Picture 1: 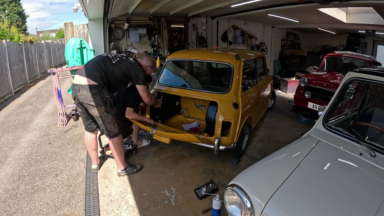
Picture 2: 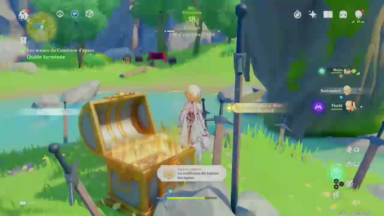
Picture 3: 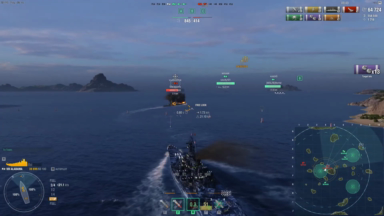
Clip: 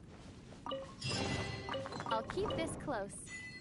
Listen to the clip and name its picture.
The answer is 2